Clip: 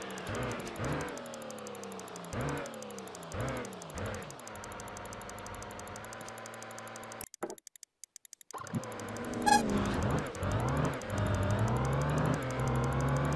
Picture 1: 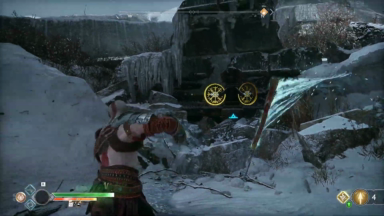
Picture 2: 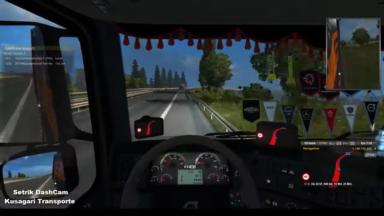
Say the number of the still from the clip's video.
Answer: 2